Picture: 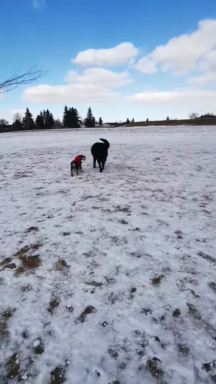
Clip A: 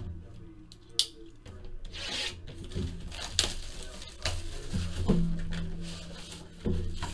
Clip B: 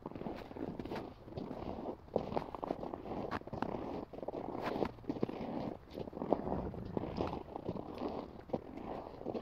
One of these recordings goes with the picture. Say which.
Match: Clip B